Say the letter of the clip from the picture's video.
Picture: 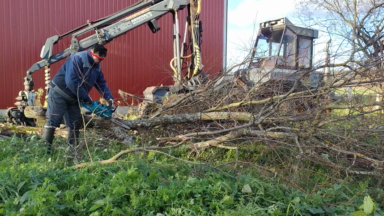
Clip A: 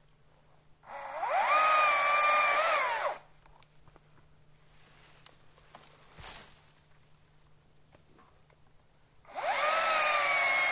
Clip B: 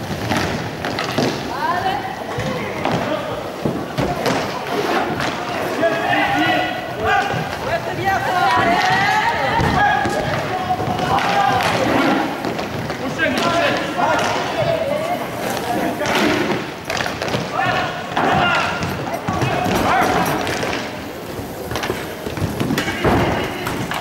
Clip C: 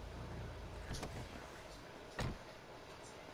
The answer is A